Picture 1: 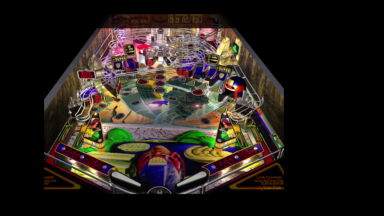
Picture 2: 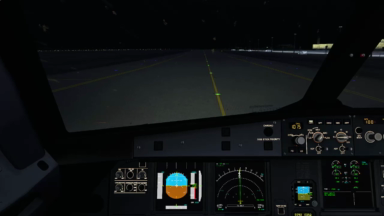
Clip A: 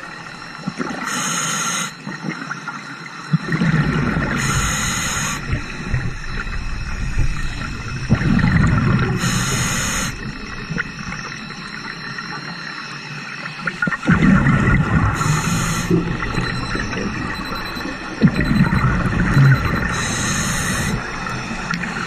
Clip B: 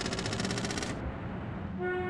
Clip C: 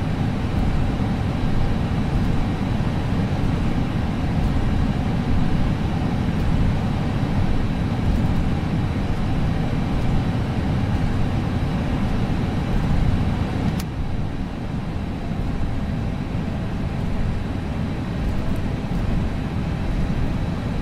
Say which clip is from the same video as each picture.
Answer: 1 B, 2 C